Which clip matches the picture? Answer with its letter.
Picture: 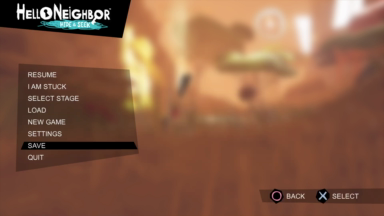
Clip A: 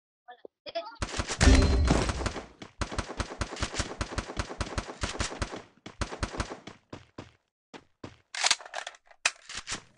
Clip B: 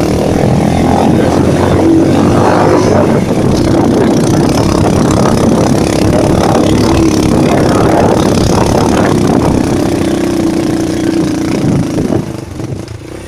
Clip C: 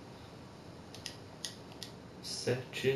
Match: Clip C